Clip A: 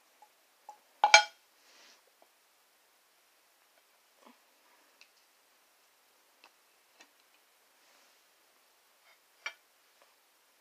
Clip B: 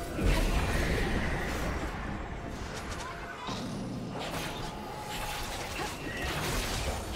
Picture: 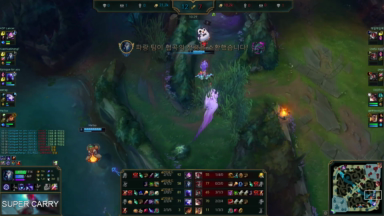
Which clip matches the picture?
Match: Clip B